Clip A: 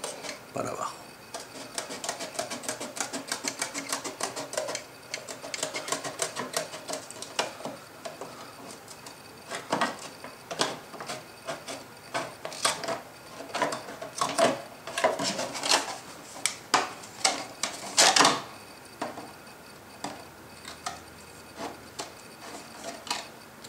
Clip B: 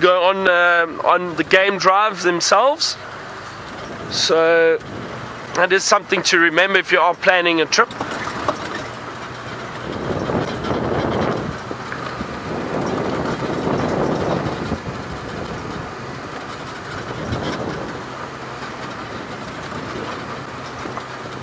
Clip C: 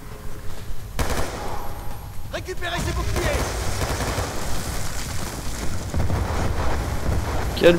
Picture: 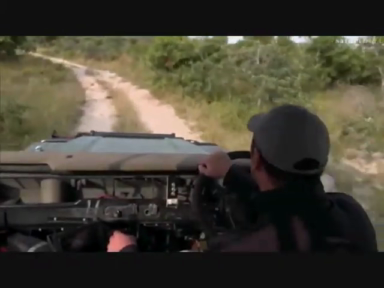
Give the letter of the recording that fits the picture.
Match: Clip B